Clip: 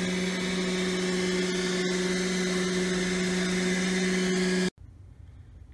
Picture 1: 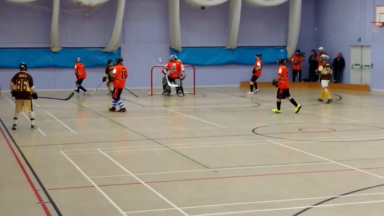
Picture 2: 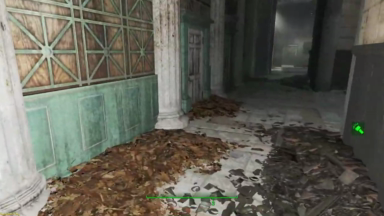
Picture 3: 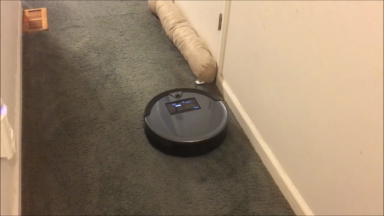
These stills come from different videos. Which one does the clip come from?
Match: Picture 3